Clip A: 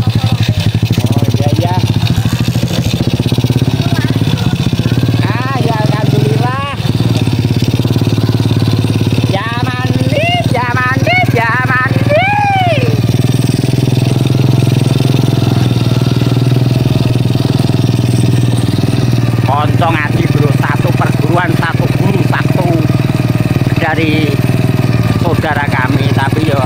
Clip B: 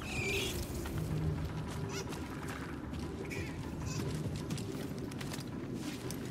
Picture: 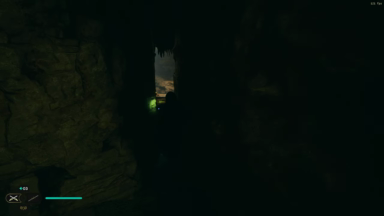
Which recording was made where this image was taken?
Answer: B